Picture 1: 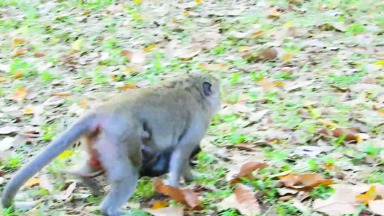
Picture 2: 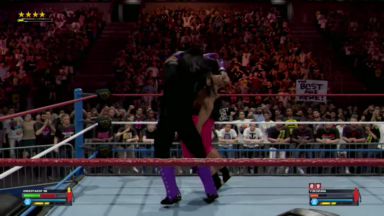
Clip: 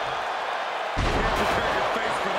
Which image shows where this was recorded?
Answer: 2